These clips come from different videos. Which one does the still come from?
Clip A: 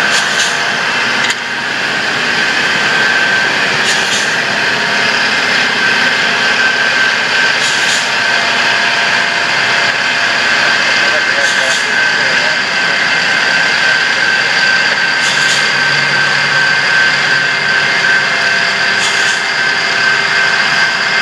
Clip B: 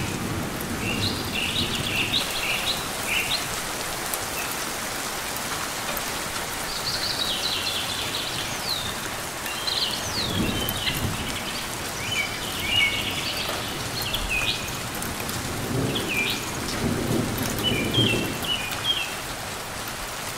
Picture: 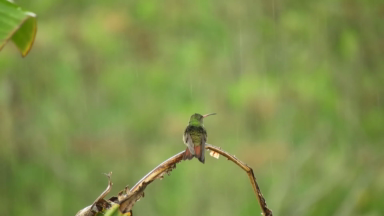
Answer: B